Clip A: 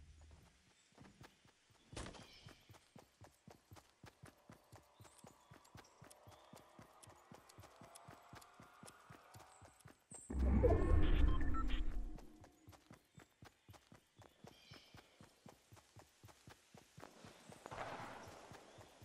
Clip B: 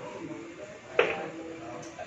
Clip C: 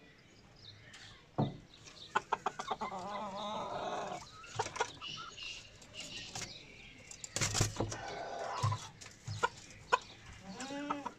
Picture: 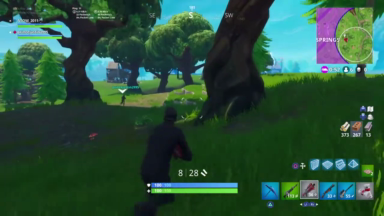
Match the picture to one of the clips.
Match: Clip A